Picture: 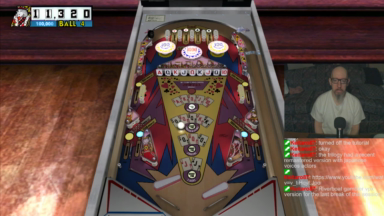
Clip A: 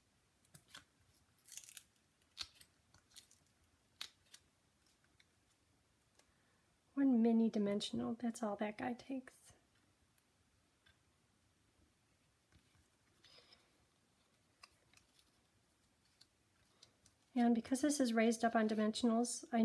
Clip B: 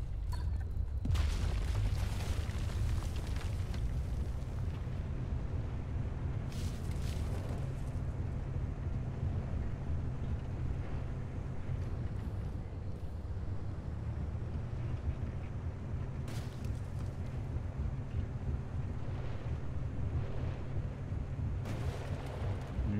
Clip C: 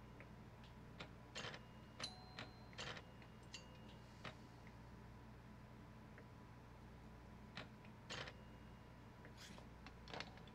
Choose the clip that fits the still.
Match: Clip C